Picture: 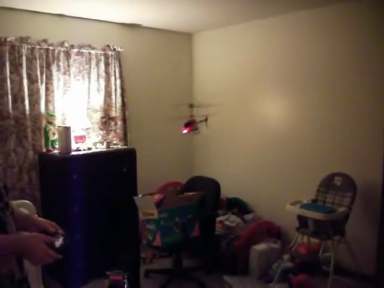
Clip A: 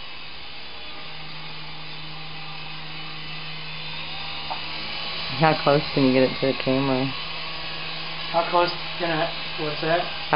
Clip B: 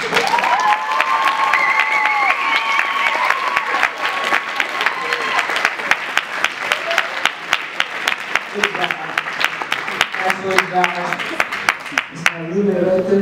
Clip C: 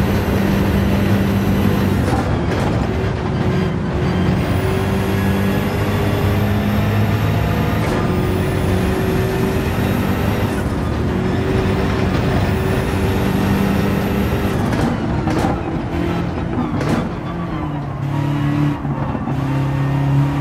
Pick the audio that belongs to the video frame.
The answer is A